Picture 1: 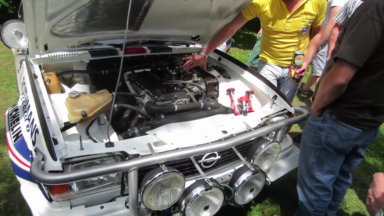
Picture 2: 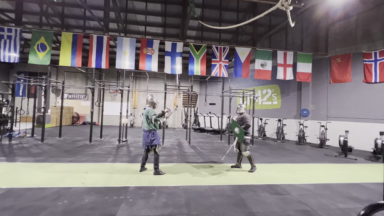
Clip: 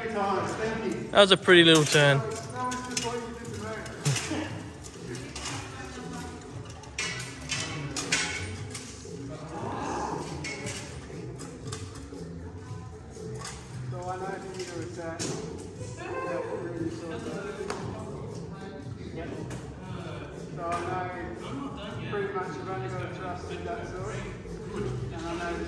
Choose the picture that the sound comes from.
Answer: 2